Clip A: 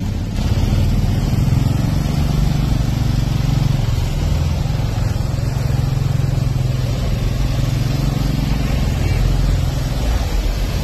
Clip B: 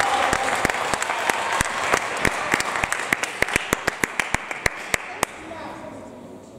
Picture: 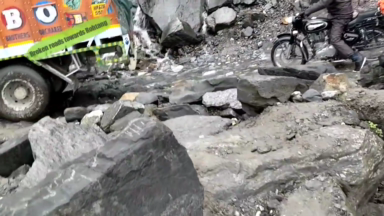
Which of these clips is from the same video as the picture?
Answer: A